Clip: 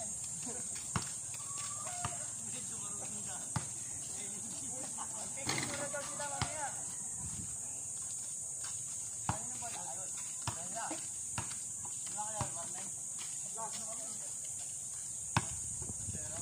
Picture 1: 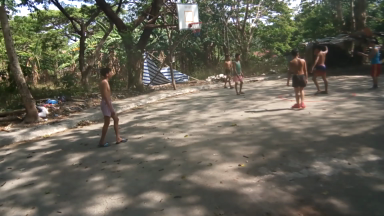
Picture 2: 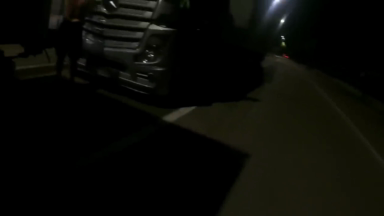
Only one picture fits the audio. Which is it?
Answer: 1